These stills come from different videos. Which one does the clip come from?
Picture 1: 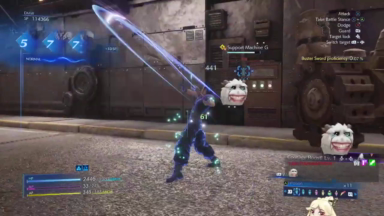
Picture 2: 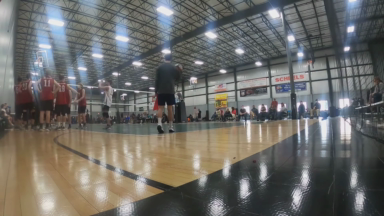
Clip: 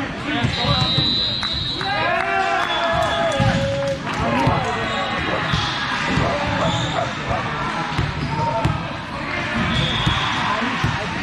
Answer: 2